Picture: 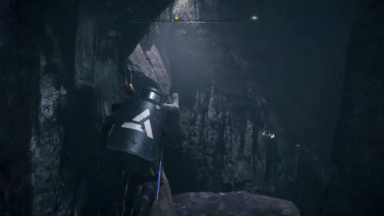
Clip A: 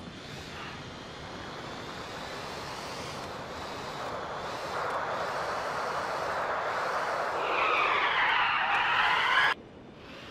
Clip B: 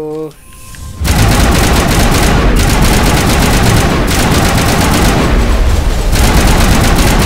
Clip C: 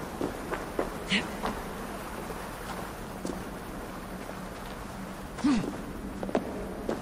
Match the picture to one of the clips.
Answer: C